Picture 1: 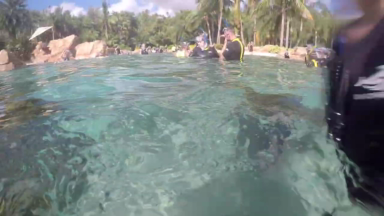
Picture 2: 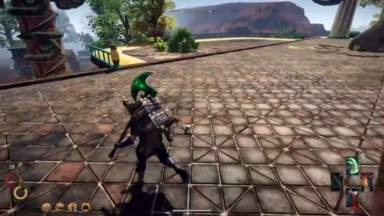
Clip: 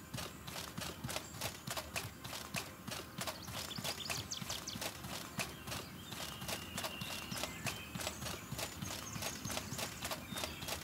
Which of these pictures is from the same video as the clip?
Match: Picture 2